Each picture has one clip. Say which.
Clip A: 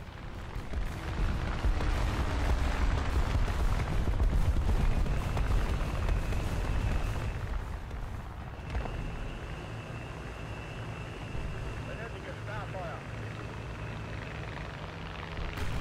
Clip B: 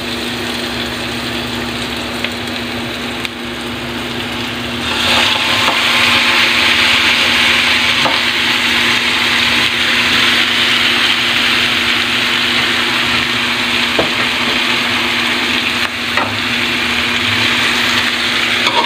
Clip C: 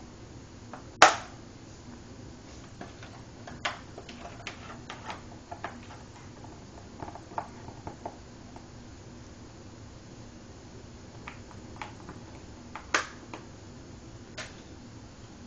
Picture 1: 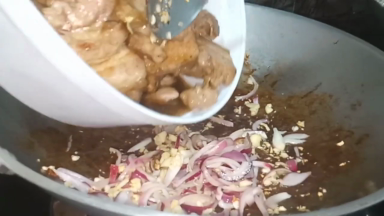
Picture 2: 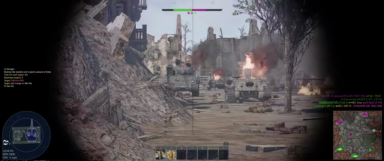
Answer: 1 B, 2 A